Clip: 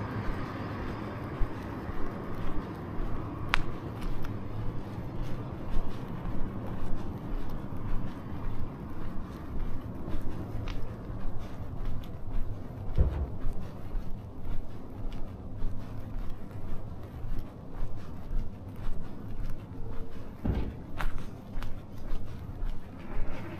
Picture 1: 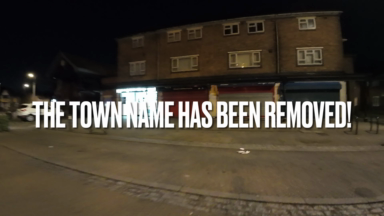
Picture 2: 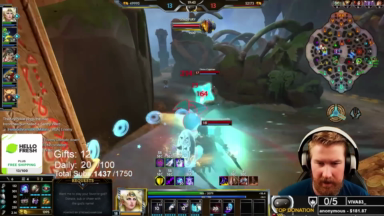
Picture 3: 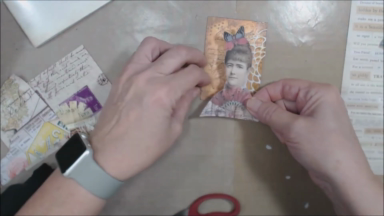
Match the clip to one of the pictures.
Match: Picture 1